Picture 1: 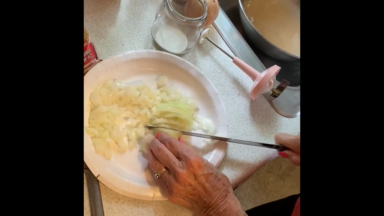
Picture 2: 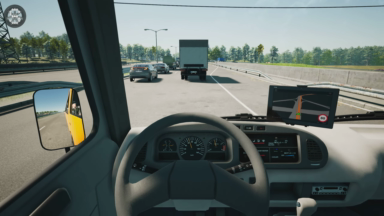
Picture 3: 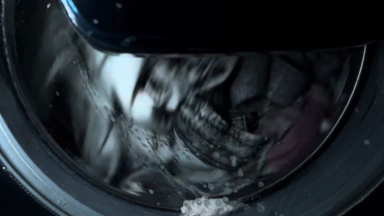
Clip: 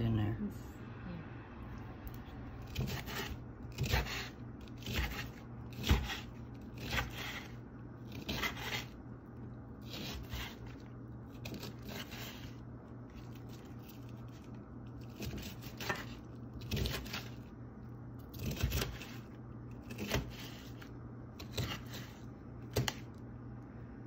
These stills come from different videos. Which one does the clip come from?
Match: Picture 1